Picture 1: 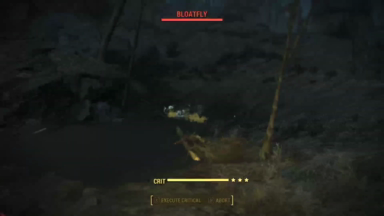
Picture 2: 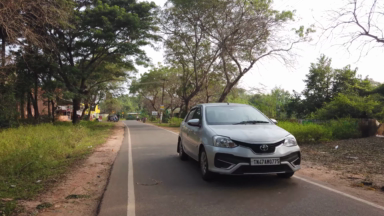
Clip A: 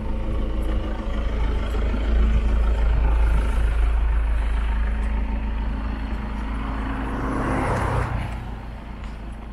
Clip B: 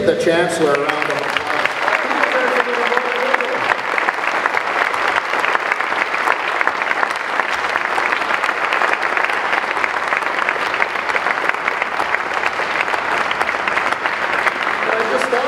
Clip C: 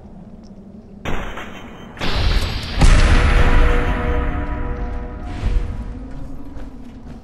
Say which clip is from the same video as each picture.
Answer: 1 C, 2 A